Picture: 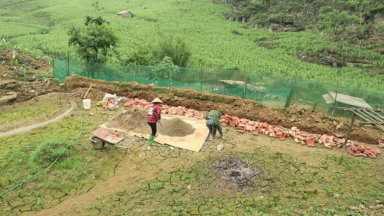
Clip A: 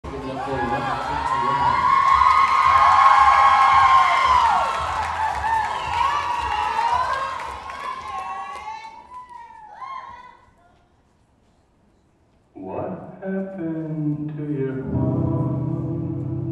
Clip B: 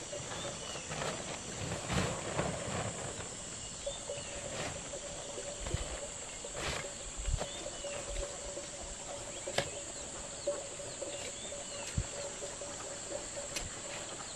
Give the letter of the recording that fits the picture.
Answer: B